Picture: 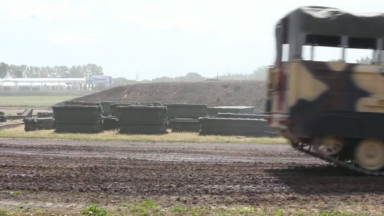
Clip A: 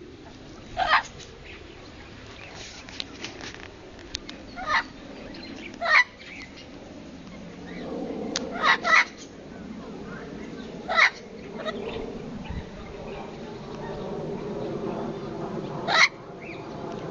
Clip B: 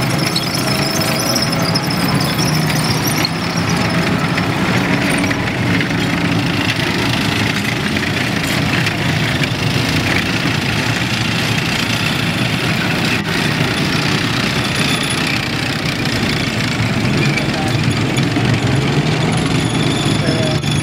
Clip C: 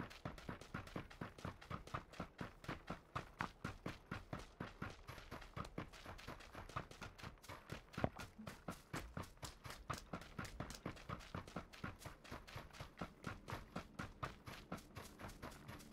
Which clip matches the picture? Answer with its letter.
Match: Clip B